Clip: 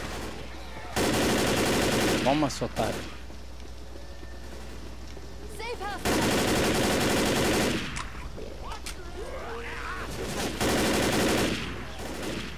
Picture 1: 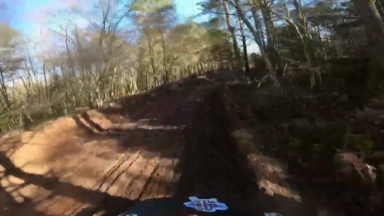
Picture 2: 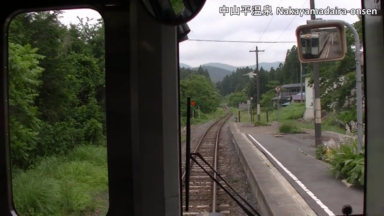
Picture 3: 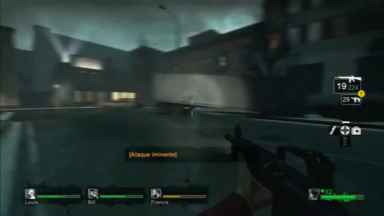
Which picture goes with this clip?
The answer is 3